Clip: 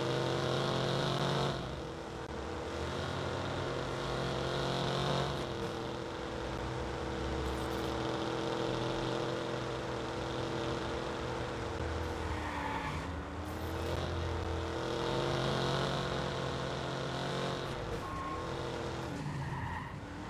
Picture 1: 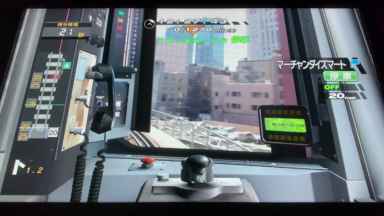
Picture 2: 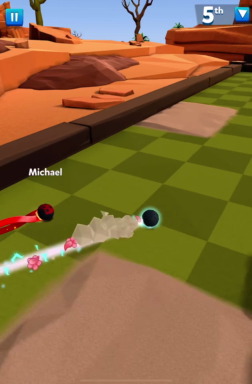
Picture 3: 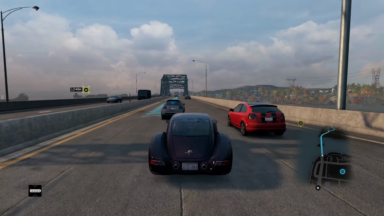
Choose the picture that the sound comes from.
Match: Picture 3